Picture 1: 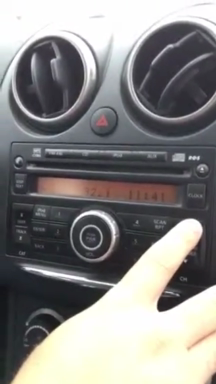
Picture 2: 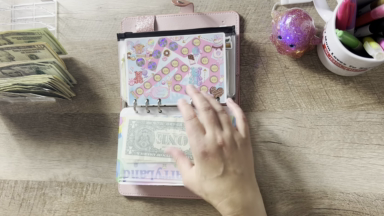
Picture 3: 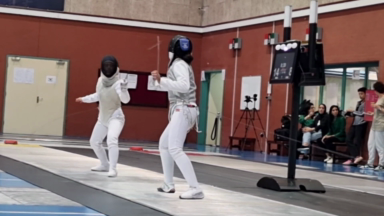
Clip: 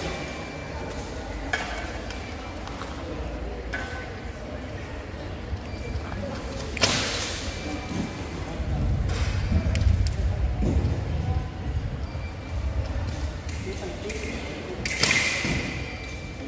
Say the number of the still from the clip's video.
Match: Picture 3